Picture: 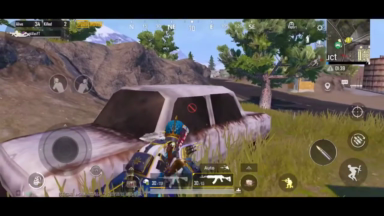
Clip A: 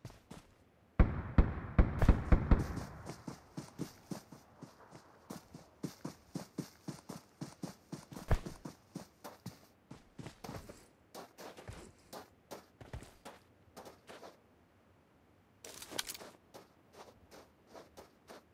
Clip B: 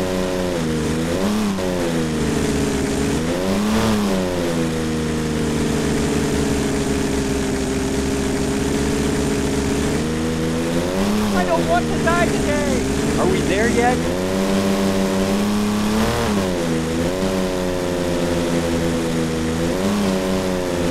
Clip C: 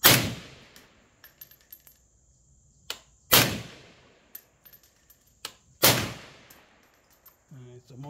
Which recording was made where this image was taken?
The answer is A